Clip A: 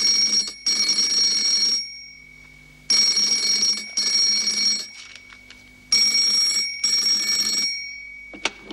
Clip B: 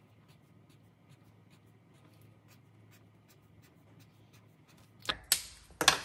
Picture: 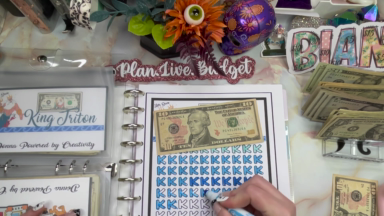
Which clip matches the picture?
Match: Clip B